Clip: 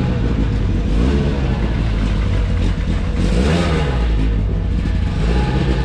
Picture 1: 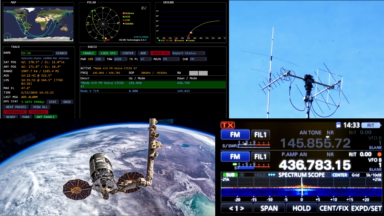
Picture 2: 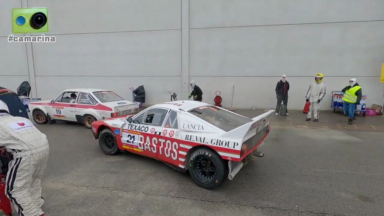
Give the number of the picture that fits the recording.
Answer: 2